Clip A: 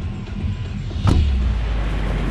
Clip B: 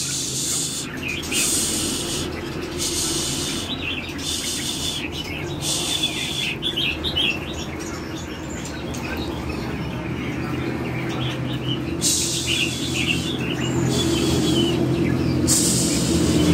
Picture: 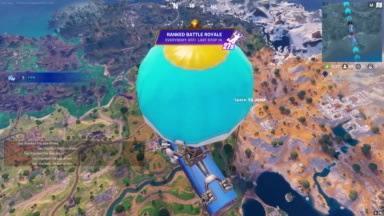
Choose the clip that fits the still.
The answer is A